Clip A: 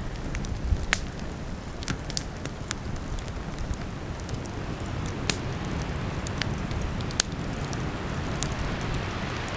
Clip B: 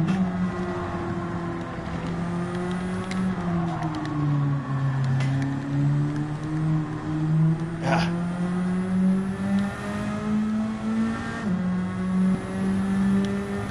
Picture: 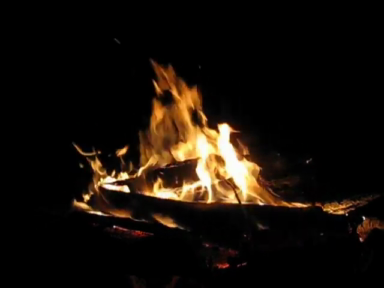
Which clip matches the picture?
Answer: A